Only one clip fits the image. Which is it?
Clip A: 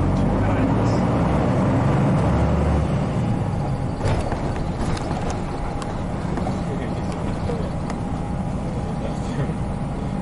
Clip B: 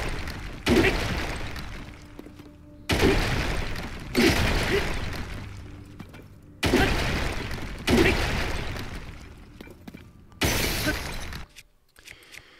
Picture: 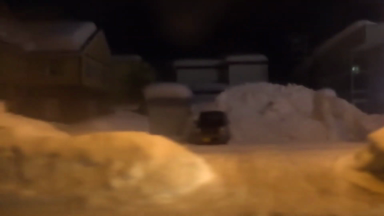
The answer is A